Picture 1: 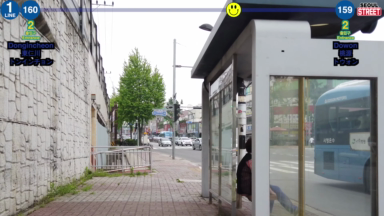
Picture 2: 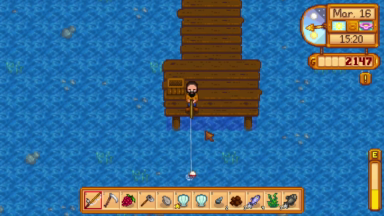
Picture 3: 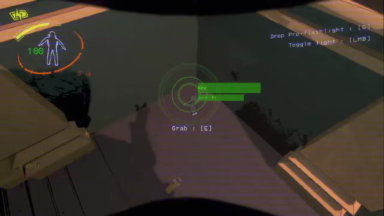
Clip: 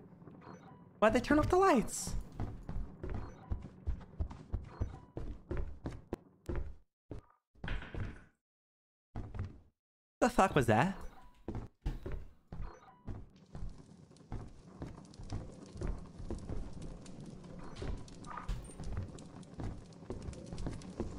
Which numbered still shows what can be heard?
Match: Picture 3